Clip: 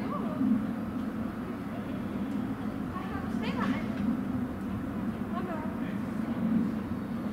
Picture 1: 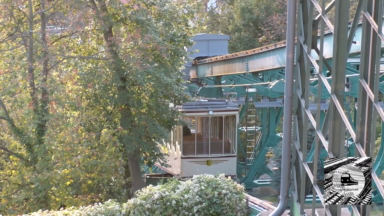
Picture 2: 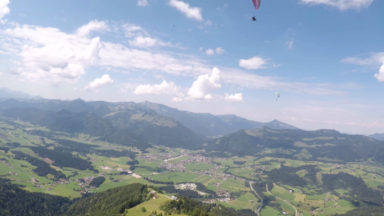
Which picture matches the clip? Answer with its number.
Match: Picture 1